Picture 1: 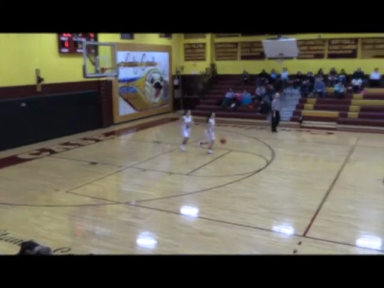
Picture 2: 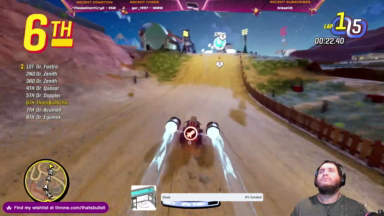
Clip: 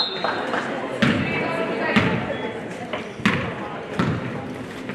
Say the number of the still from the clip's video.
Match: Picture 1